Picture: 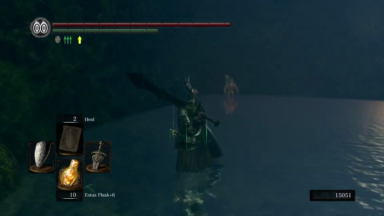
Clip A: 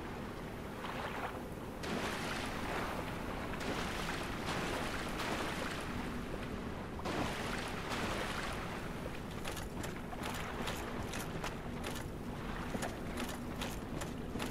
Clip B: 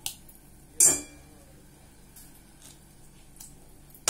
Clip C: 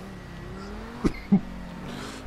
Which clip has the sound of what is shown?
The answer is A